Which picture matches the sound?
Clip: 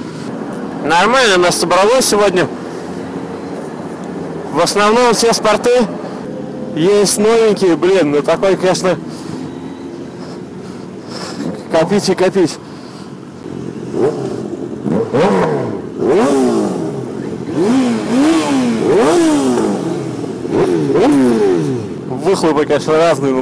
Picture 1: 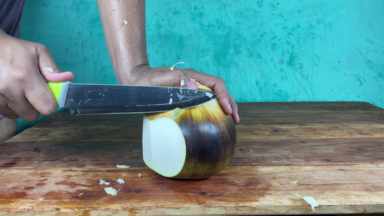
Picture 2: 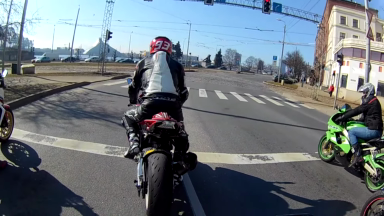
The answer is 2